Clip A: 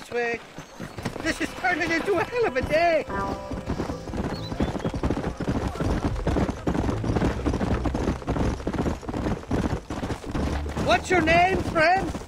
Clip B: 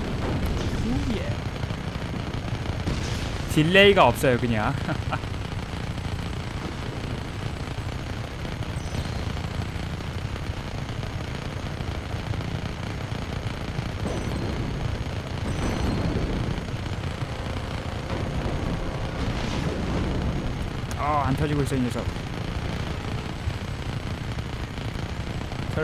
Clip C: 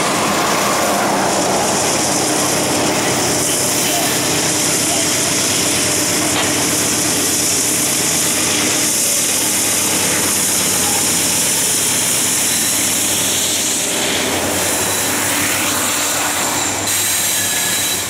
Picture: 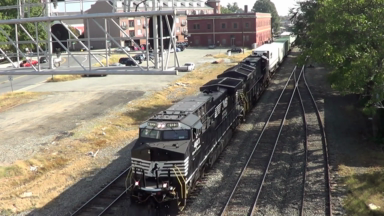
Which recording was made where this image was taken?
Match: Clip C